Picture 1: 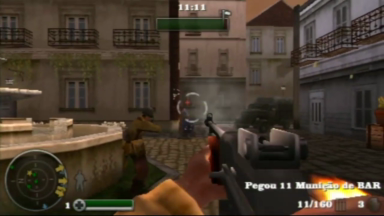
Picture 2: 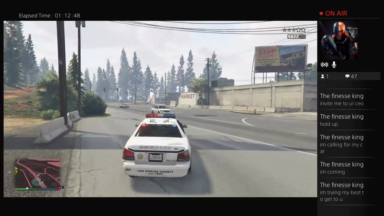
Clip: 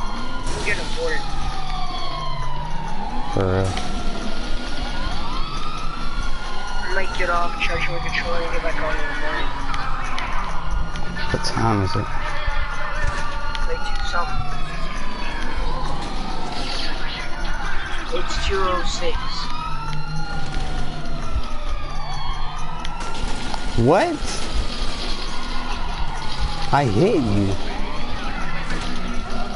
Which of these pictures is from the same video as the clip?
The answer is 2